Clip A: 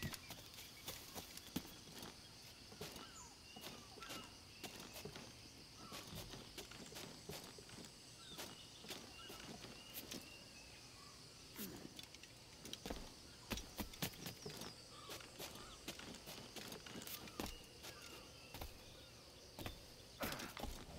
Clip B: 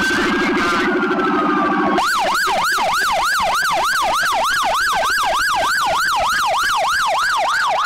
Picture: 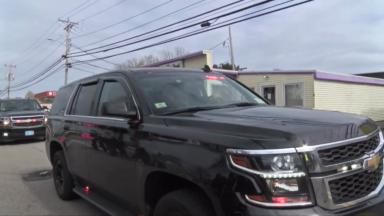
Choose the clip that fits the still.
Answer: B